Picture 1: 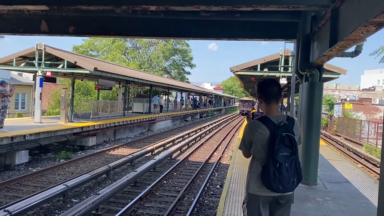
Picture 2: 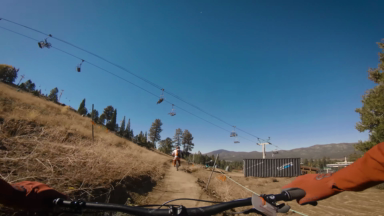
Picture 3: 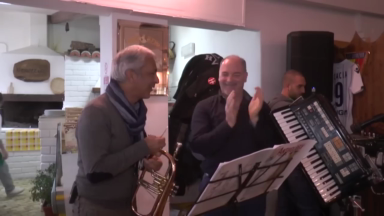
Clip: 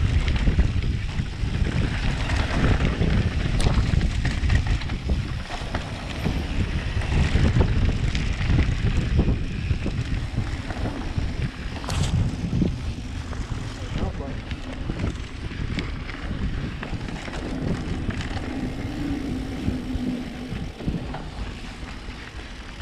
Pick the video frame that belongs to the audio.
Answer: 2